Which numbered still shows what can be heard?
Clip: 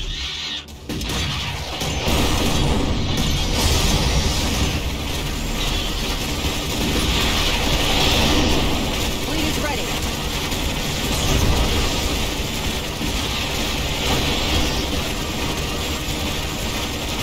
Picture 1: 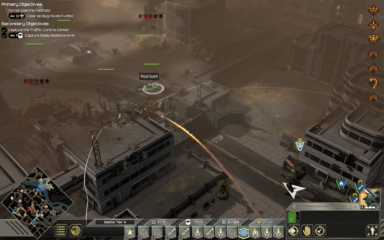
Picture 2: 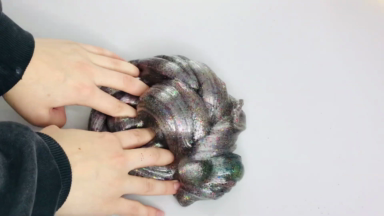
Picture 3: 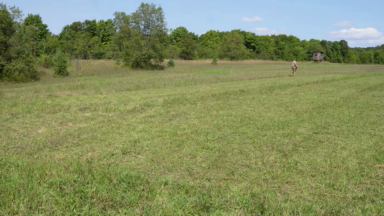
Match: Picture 1